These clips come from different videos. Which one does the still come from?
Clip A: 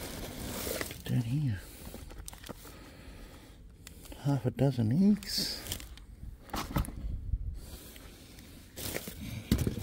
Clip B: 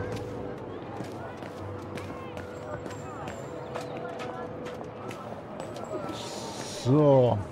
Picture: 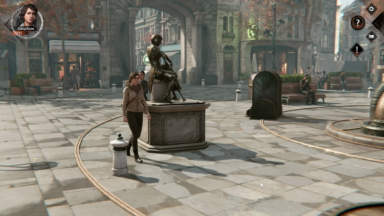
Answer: B